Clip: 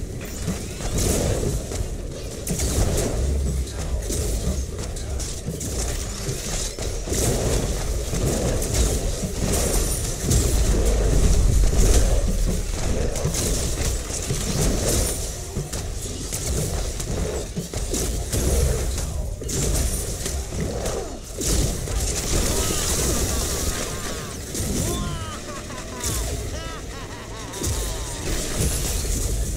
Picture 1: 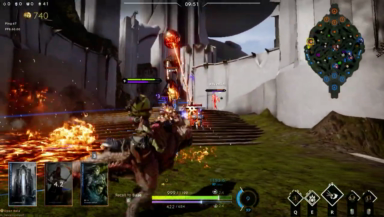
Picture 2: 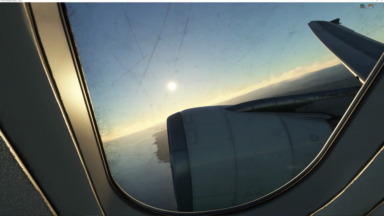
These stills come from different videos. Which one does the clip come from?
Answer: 1